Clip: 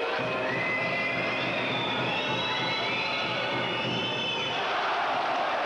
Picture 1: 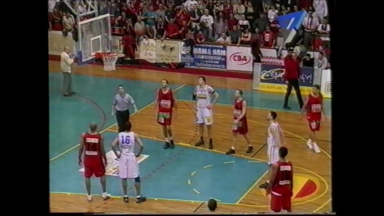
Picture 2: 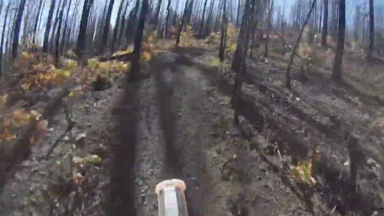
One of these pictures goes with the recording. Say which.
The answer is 1